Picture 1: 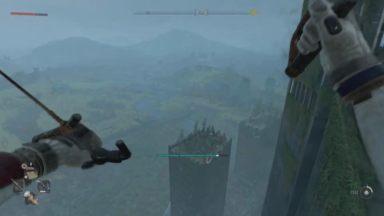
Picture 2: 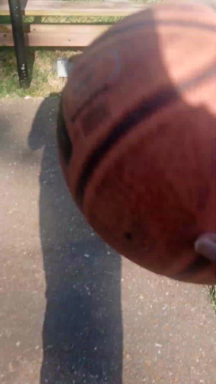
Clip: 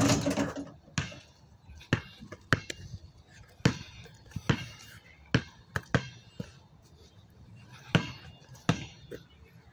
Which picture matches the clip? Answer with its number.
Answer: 2